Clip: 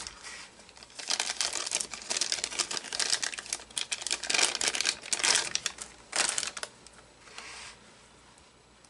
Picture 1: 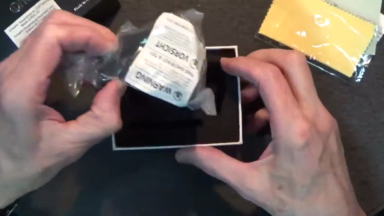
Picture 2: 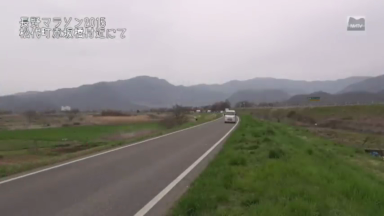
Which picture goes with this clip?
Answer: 1